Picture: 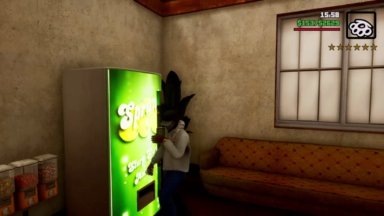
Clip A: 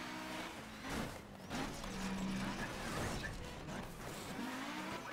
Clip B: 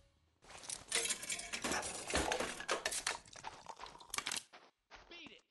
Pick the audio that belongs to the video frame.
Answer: B